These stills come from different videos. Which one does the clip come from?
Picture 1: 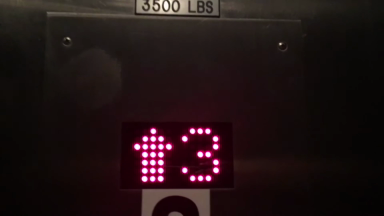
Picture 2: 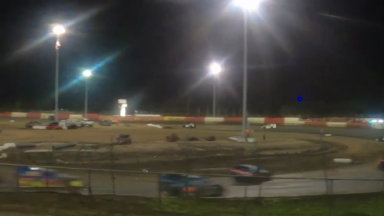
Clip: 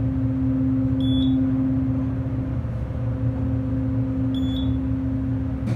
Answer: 1